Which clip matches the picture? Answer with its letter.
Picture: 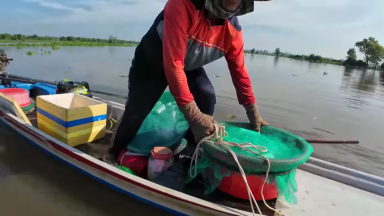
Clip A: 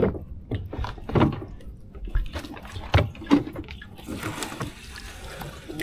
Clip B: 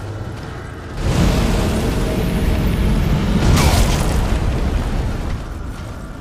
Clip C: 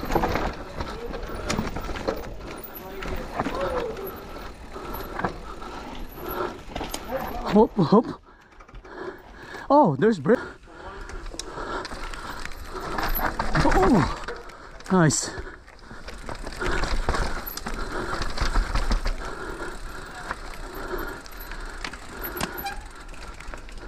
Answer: A